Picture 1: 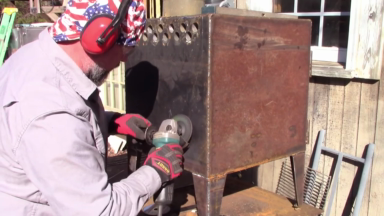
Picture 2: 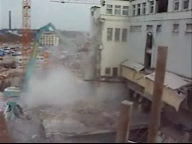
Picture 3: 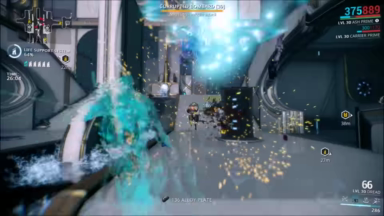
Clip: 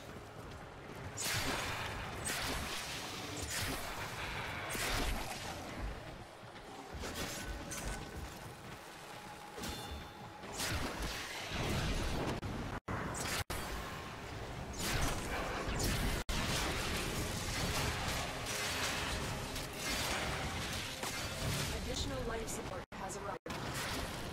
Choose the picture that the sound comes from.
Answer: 3